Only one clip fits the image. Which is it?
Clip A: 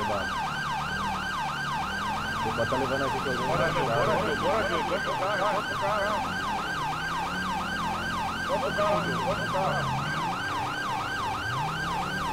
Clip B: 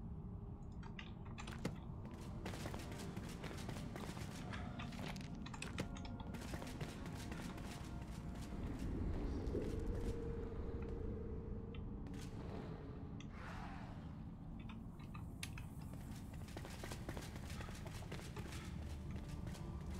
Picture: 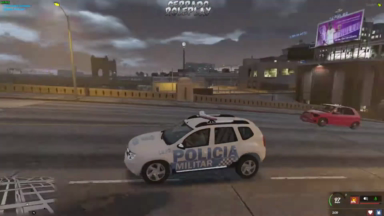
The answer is A